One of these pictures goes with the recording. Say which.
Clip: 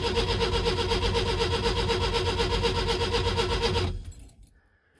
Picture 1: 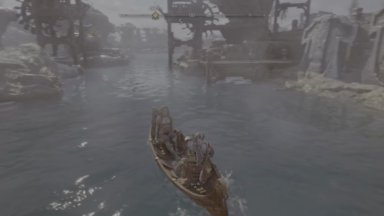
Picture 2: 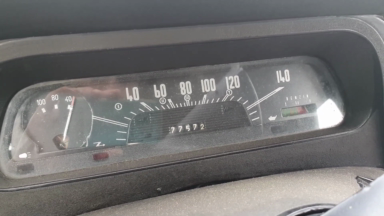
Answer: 2